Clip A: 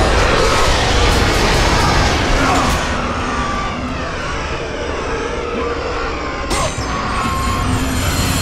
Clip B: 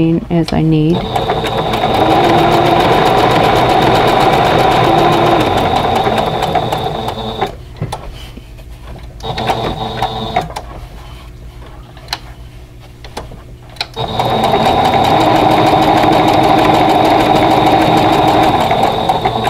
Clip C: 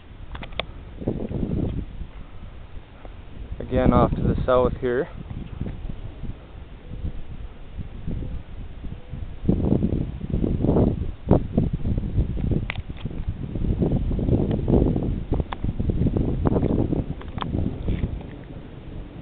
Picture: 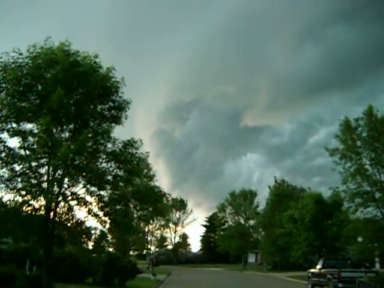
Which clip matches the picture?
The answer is C